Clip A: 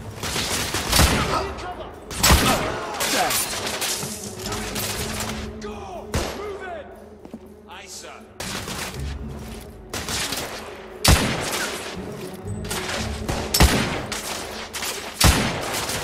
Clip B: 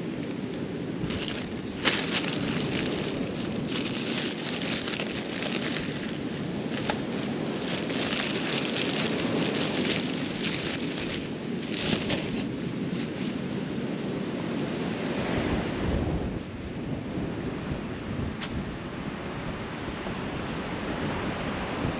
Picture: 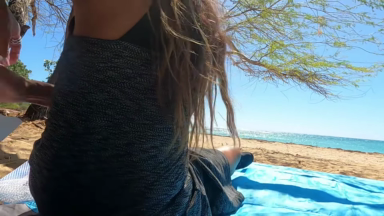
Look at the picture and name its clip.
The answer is B